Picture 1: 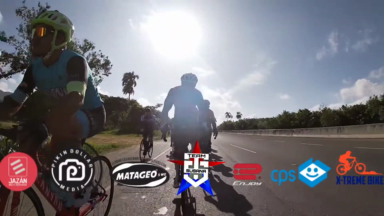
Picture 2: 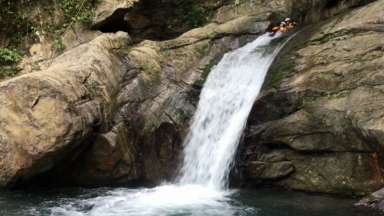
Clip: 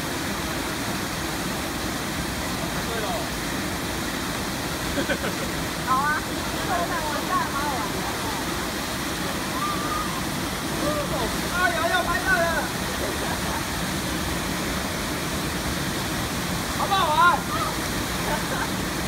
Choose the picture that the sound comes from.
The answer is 2